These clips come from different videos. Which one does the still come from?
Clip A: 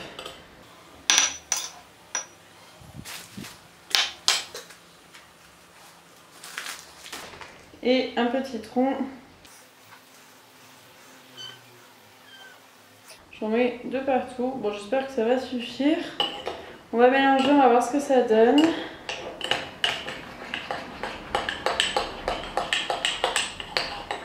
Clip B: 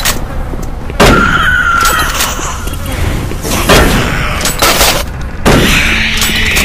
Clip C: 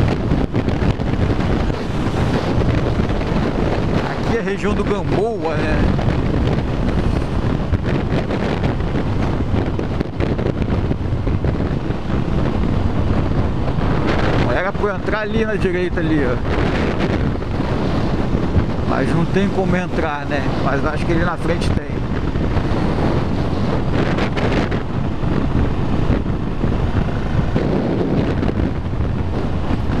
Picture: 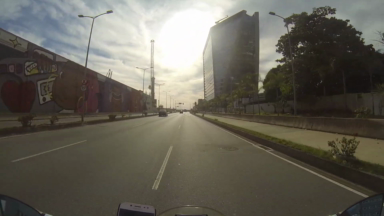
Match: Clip C